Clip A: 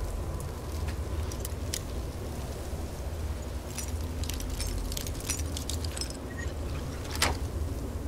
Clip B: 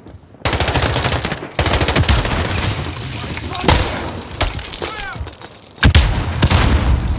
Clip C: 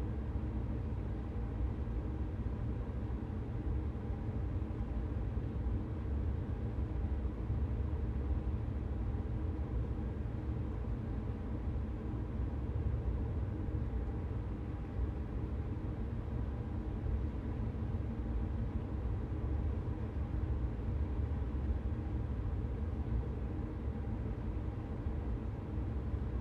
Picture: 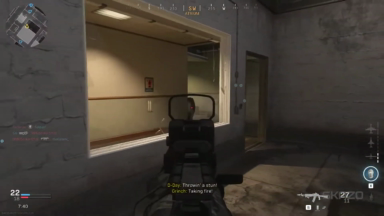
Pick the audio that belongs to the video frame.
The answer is B